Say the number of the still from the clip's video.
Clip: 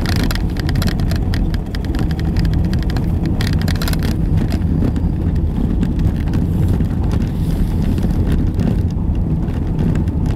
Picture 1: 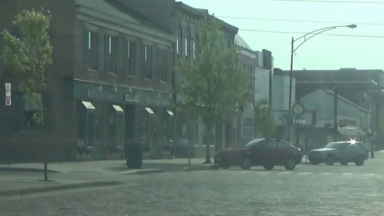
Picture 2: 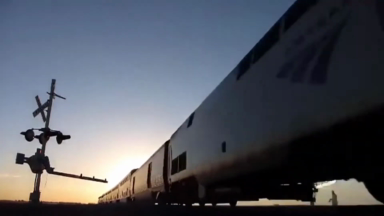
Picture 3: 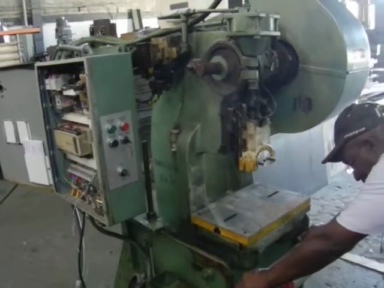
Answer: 1